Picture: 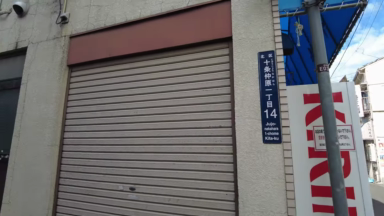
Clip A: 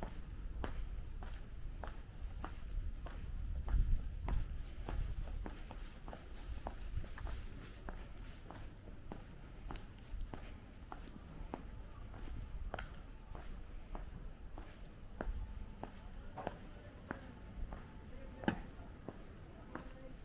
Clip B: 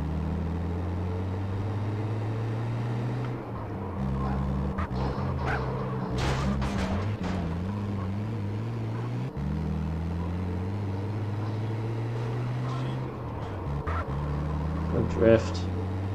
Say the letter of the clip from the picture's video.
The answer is A